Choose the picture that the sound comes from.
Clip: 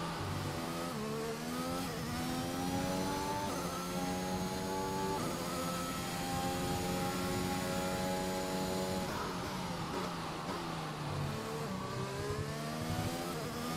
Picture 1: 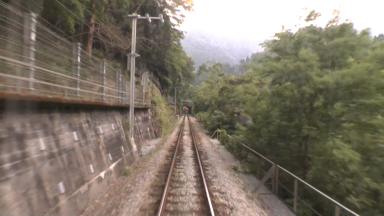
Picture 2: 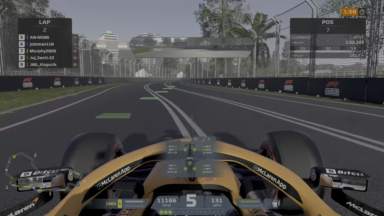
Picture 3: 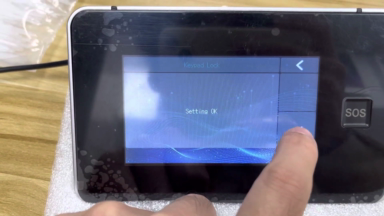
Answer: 2